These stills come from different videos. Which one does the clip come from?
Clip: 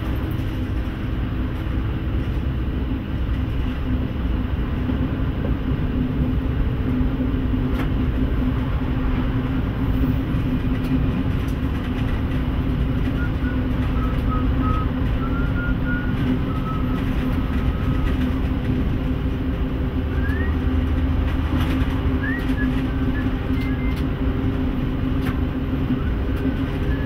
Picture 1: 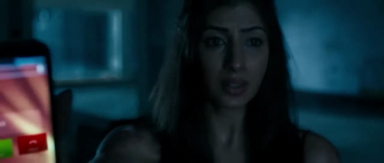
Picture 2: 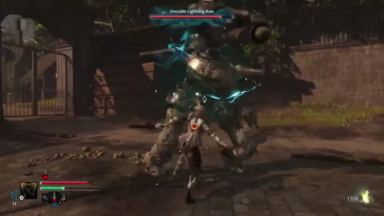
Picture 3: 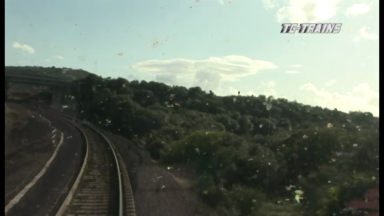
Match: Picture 3